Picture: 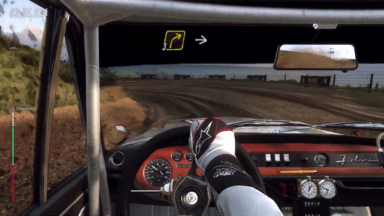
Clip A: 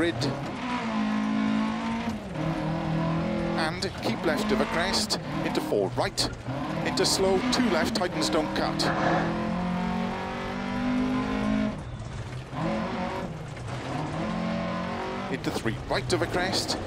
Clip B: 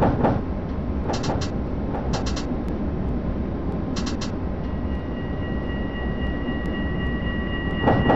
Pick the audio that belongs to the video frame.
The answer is A